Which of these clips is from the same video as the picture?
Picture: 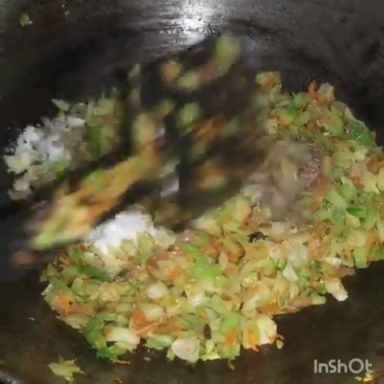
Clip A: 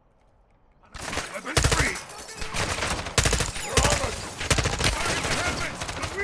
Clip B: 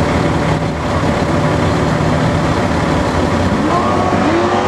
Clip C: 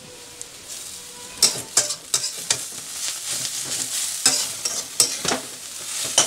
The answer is C